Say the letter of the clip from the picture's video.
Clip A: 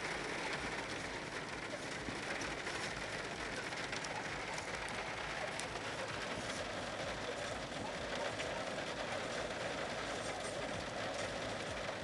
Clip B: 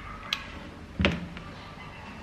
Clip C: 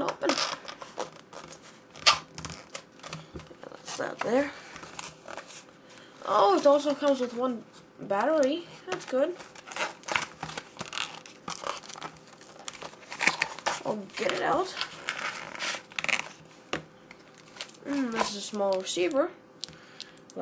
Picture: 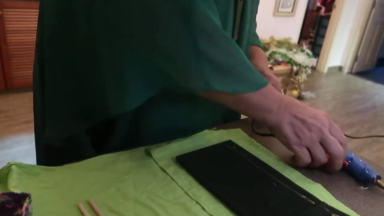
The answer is B